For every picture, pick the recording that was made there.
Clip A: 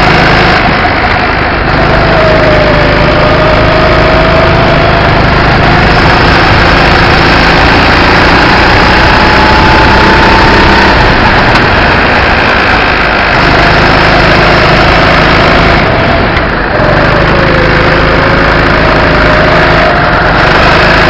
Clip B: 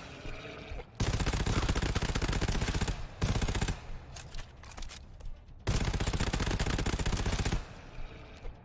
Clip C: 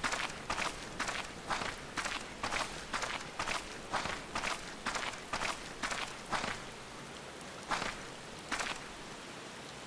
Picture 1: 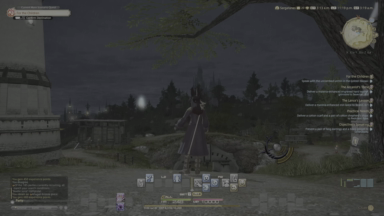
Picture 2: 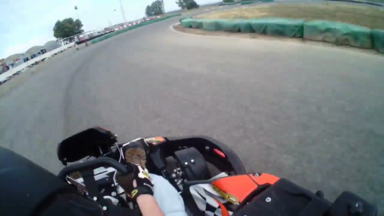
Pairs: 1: C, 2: A